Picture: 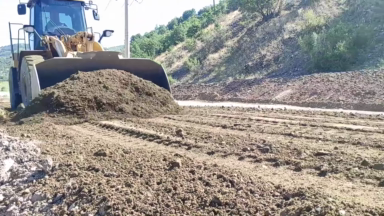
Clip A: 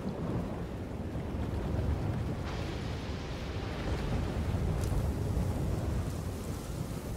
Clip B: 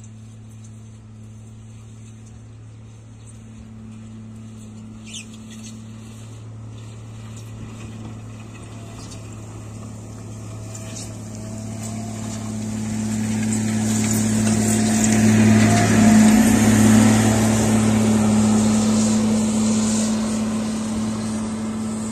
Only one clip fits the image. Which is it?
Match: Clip B